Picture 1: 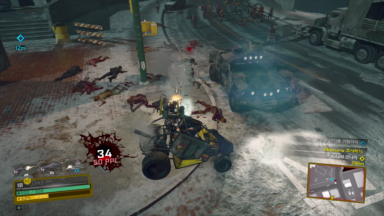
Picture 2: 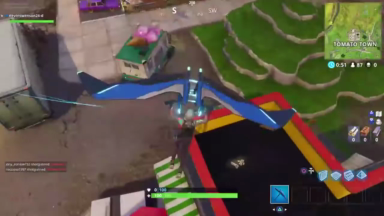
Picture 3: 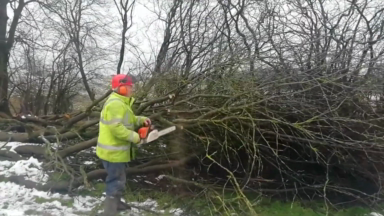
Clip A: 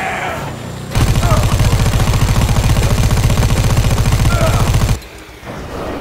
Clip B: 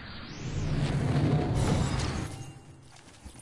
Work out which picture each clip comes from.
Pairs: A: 1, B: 2